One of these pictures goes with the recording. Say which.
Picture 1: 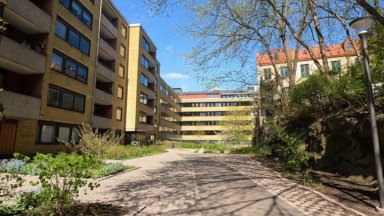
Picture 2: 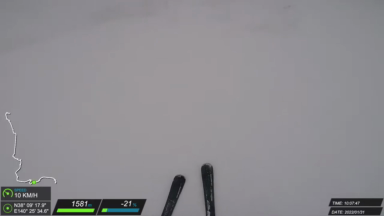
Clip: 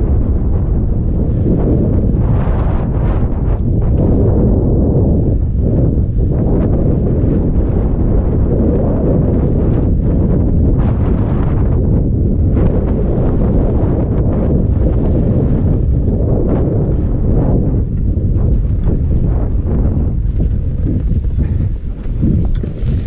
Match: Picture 2